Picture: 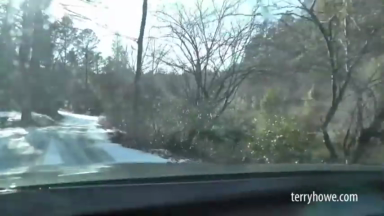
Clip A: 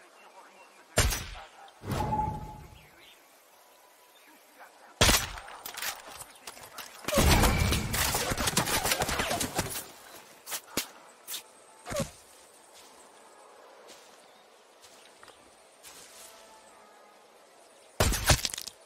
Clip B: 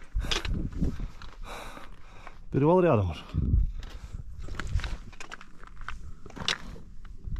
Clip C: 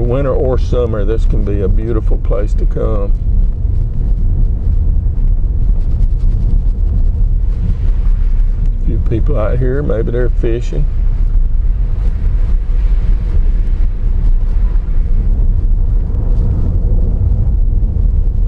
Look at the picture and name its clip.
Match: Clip C